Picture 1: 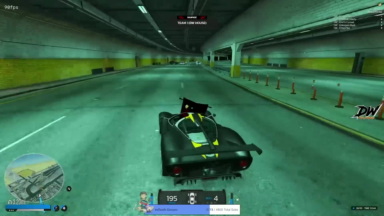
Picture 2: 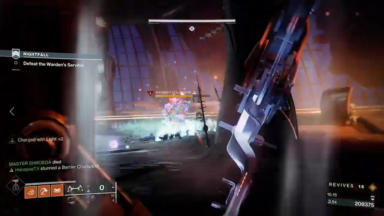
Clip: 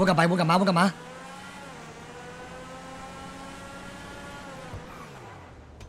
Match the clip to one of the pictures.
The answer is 1